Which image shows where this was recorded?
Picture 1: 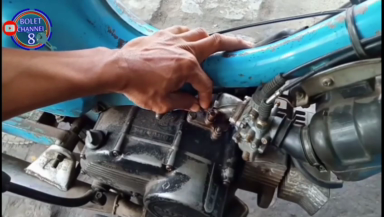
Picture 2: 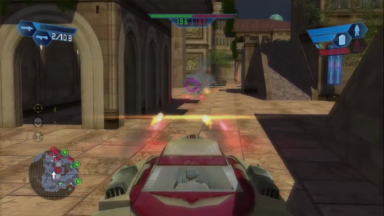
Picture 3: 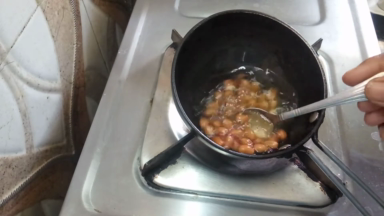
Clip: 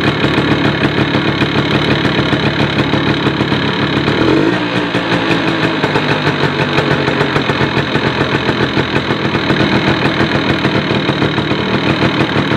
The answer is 1